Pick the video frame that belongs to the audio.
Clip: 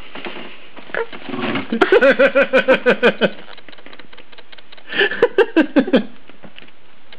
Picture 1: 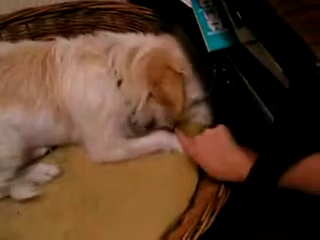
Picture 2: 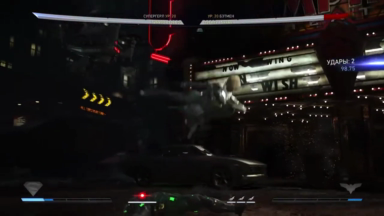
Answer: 1